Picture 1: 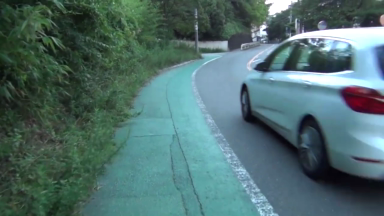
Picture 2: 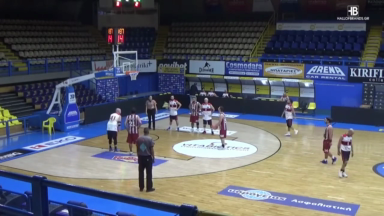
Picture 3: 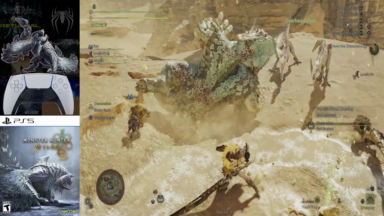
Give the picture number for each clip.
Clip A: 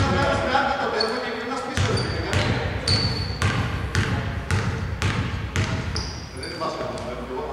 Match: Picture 2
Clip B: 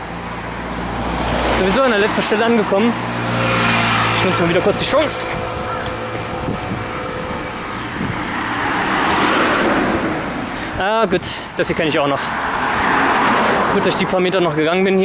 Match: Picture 1